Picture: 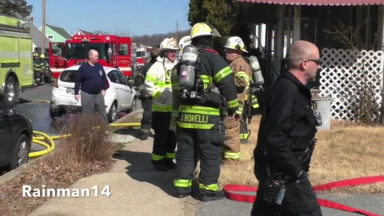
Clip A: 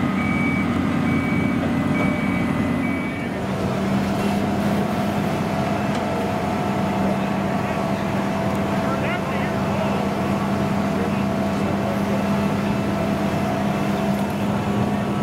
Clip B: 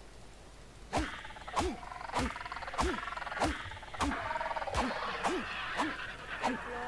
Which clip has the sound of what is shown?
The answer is A